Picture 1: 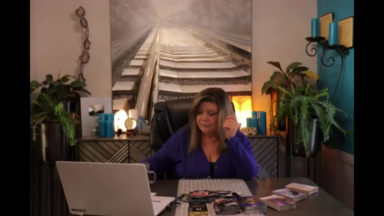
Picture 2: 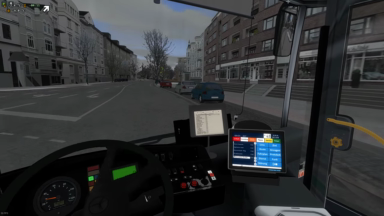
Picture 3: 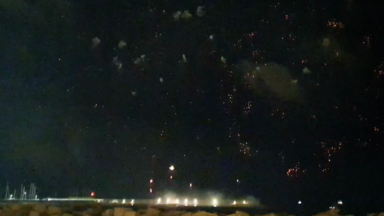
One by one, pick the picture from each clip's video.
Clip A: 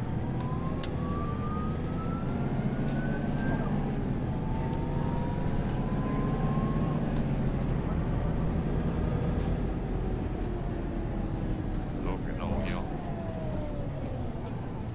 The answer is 2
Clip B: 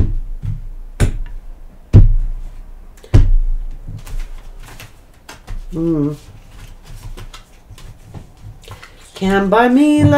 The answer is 1